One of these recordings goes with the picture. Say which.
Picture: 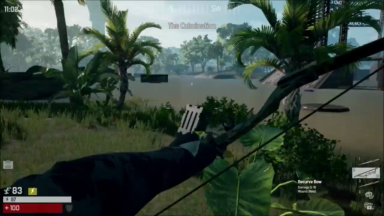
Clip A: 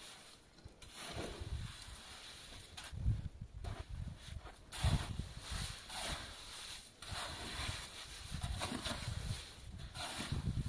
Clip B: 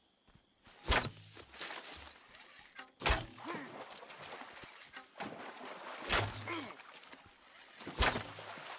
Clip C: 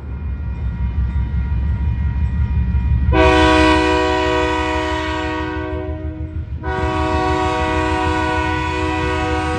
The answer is B